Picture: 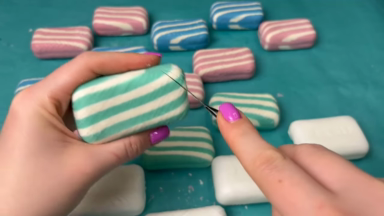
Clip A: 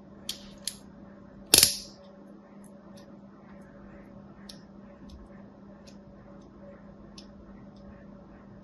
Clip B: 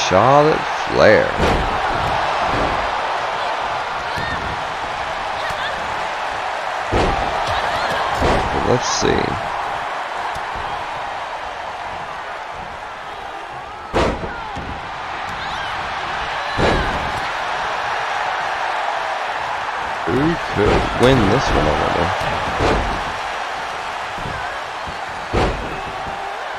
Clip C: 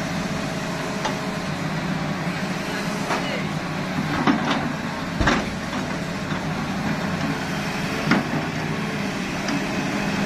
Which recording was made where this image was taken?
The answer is A